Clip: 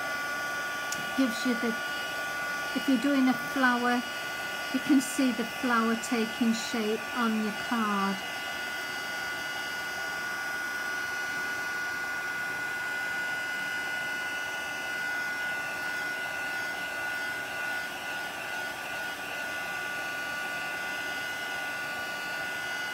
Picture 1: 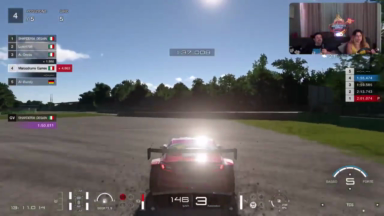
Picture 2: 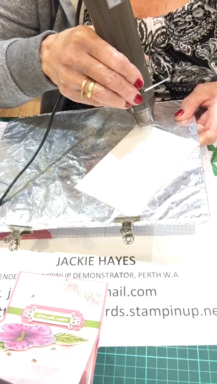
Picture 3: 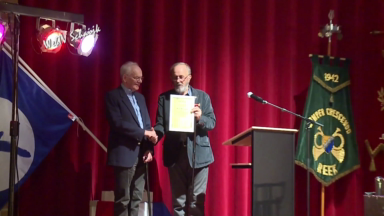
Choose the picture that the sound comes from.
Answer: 2